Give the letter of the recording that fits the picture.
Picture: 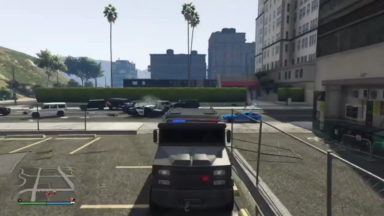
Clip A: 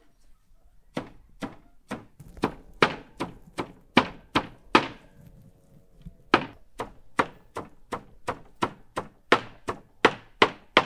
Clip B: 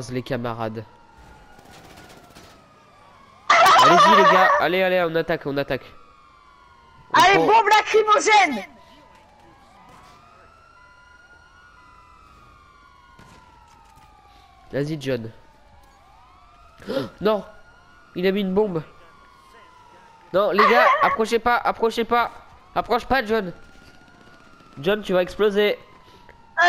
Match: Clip B